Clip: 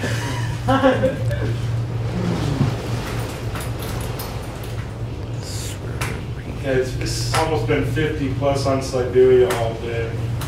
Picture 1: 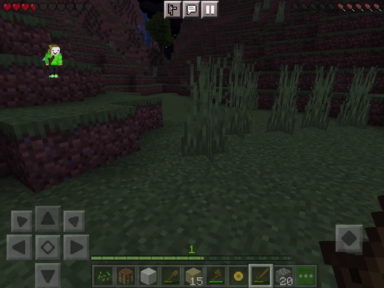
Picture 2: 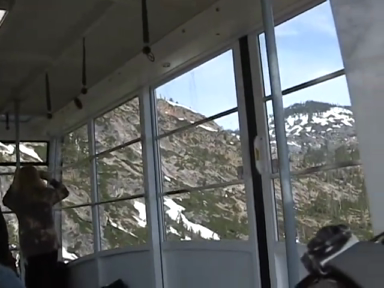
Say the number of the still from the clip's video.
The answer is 2